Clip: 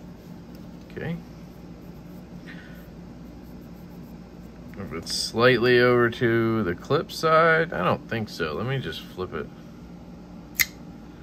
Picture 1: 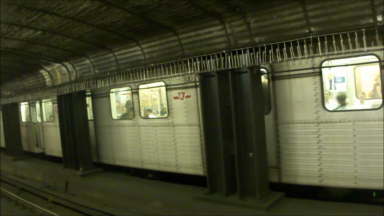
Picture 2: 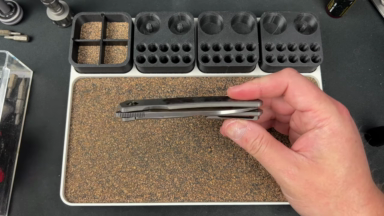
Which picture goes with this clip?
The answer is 2